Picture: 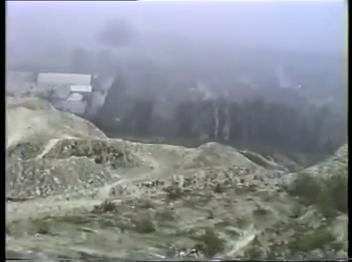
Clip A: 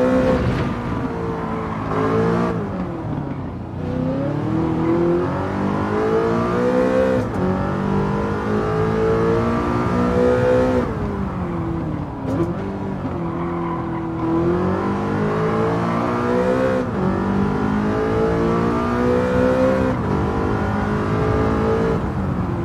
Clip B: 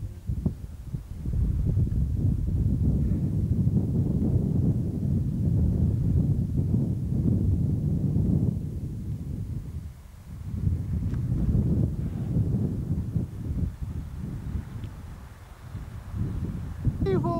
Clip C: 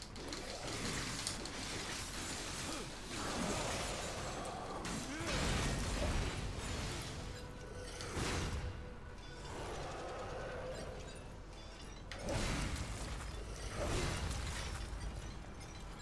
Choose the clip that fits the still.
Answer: B